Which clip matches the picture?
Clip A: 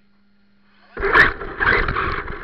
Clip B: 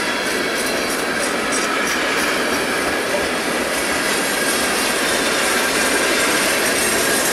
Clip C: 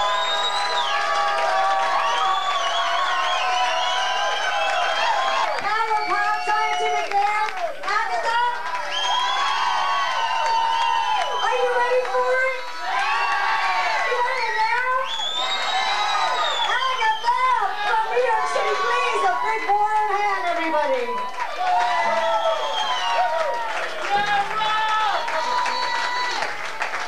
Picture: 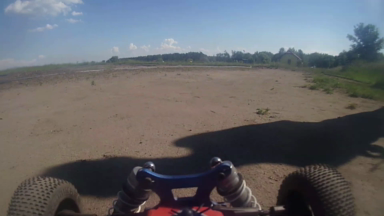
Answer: A